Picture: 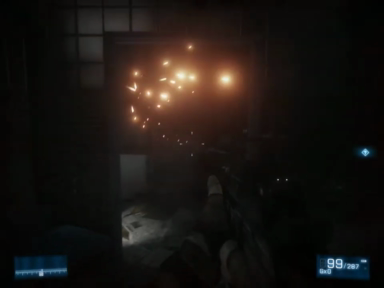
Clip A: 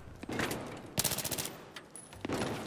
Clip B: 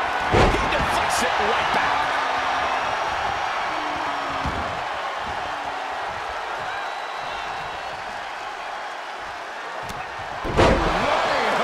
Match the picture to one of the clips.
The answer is A